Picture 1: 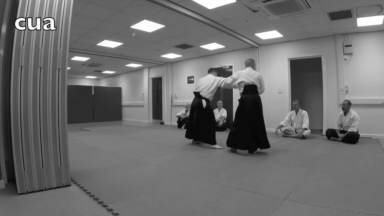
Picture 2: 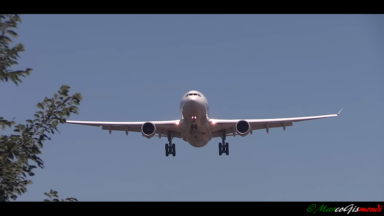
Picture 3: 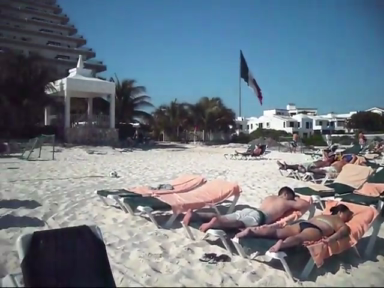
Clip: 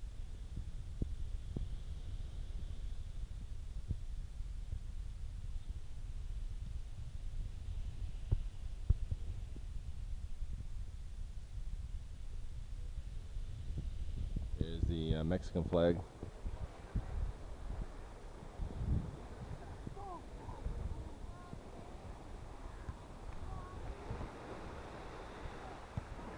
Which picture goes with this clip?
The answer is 3